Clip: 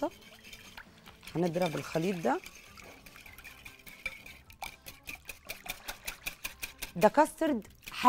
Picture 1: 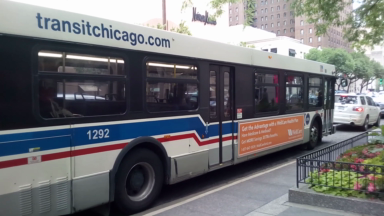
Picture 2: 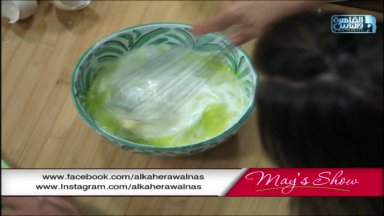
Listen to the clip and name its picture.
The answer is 2